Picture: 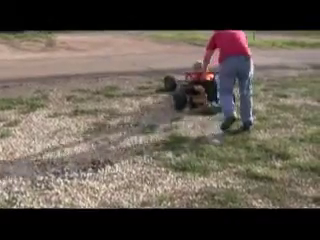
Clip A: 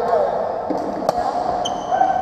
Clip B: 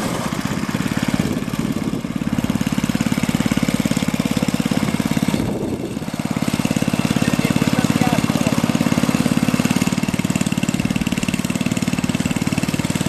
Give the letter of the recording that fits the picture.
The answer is B